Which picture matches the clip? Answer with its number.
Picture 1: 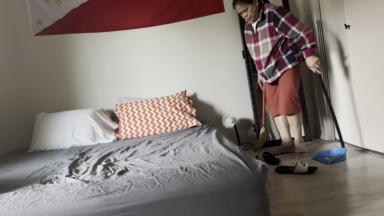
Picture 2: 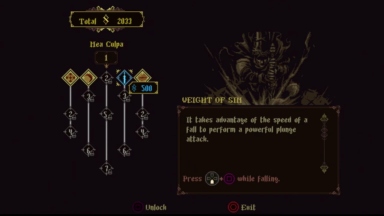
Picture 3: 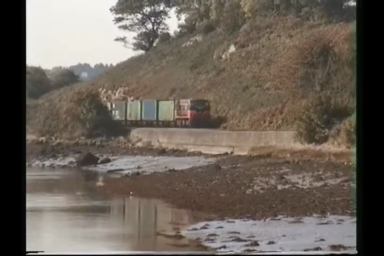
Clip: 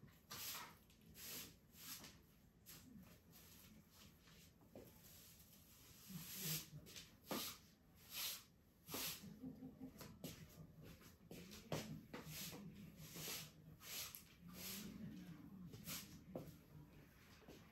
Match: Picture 1